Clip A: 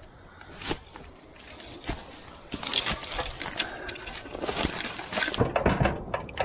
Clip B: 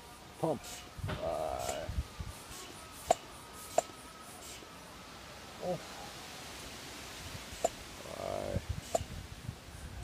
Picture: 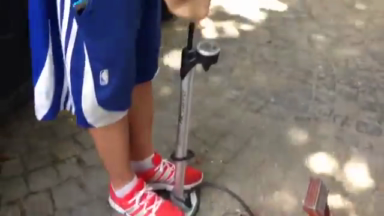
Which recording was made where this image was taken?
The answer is B